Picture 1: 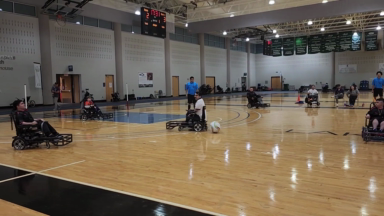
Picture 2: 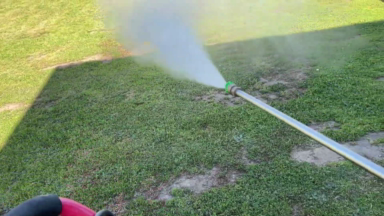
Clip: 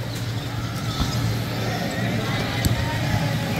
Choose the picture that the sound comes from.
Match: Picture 1